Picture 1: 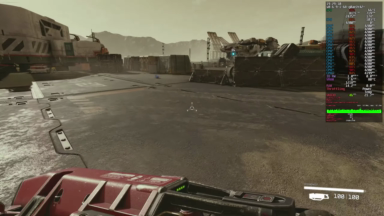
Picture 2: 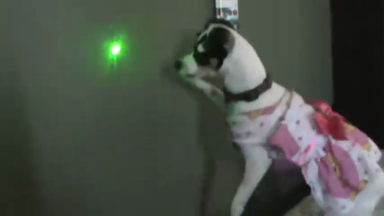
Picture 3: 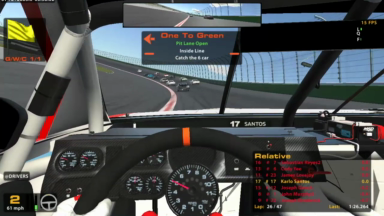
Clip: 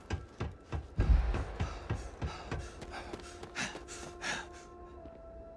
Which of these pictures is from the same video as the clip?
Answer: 1